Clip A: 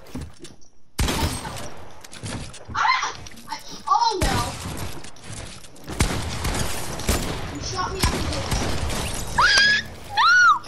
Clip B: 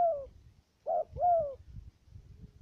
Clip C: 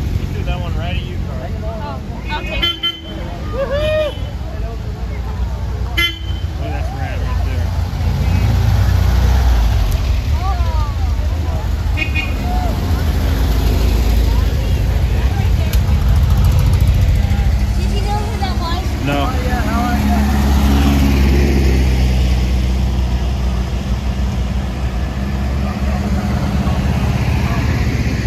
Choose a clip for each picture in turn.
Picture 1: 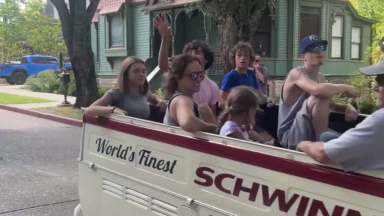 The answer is C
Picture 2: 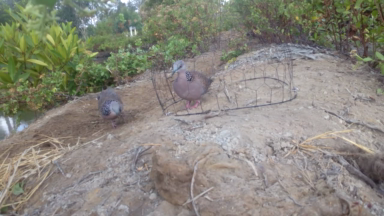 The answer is B